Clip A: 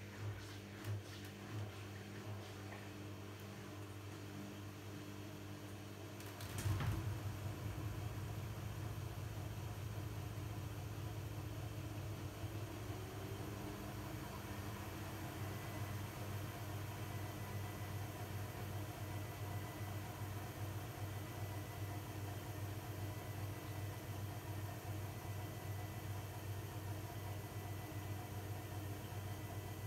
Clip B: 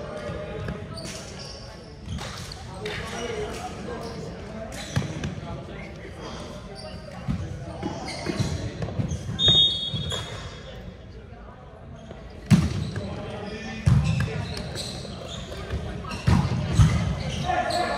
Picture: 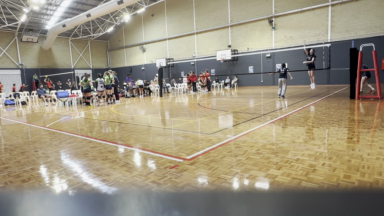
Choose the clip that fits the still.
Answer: B